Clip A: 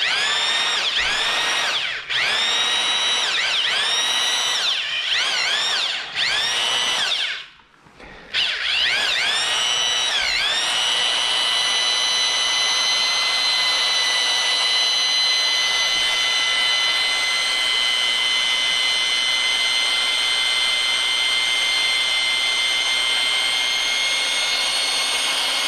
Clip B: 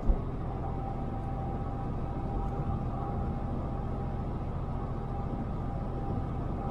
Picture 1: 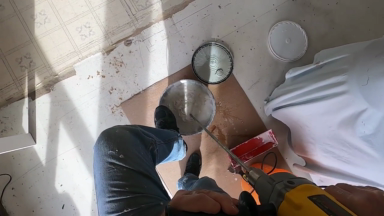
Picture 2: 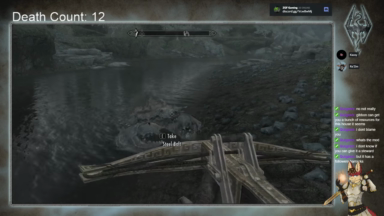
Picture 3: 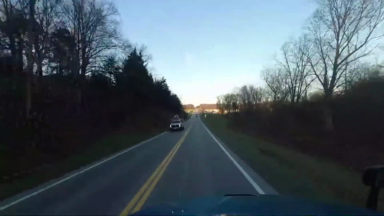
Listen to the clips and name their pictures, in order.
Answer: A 1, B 3